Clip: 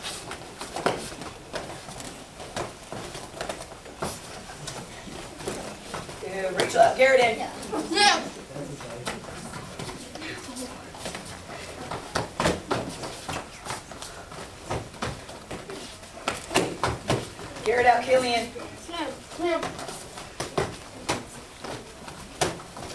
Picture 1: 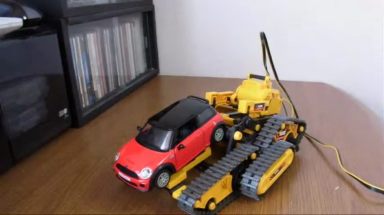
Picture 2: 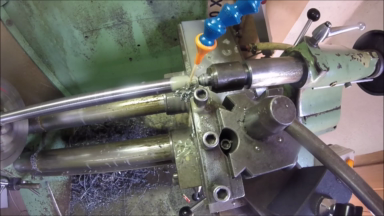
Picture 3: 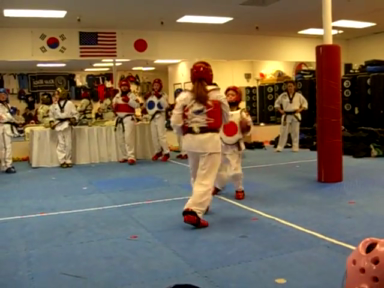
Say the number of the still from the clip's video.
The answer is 3